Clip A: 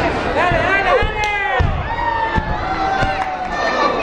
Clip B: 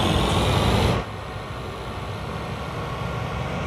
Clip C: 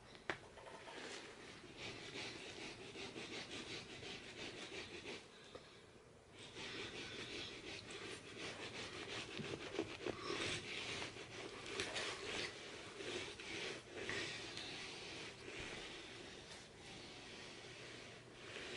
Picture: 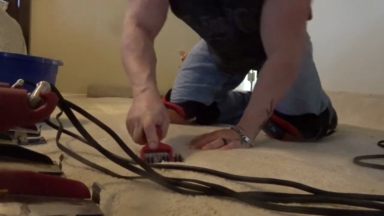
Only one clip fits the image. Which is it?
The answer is C